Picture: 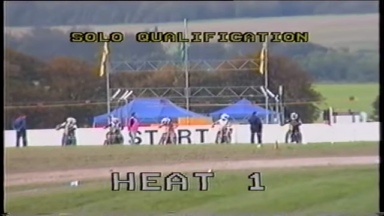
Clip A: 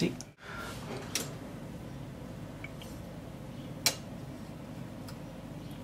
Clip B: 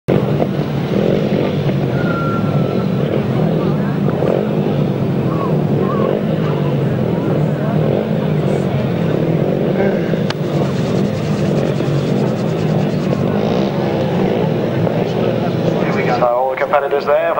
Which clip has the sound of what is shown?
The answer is B